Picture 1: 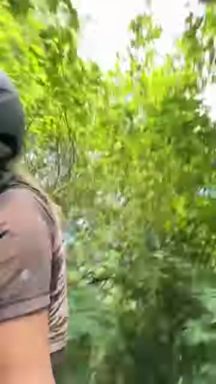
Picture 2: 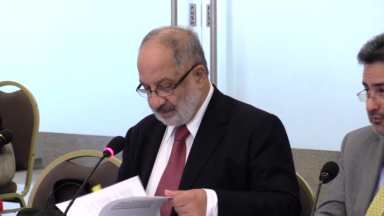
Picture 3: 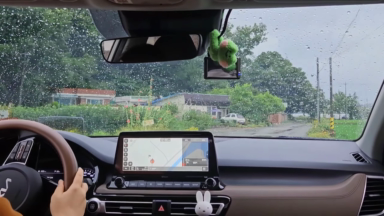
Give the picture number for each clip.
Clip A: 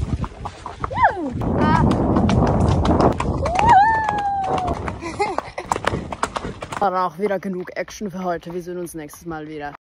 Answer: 1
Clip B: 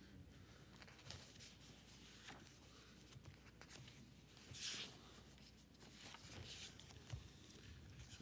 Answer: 2